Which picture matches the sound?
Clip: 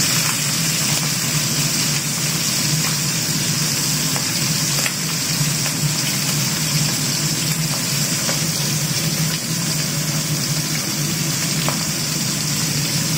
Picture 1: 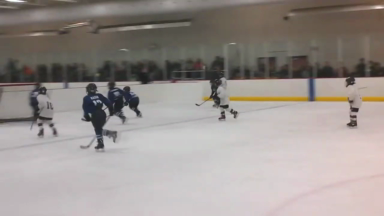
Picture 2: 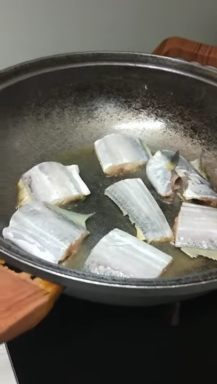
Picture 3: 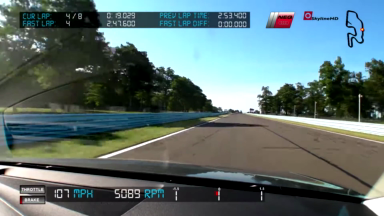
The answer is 2